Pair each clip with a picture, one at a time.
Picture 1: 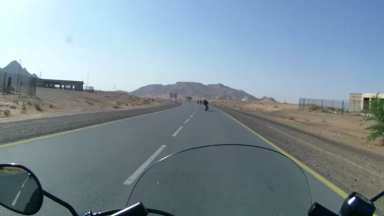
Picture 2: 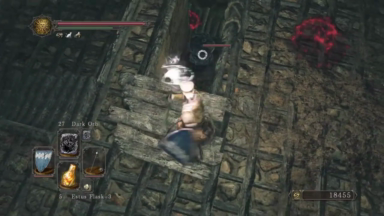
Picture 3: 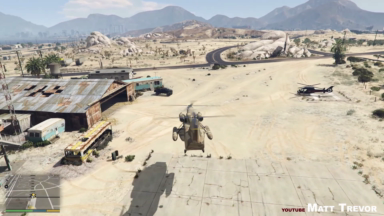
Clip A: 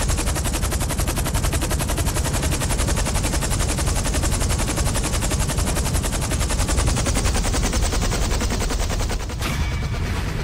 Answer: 3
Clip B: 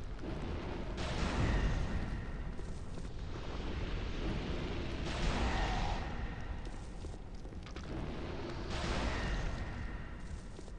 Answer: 2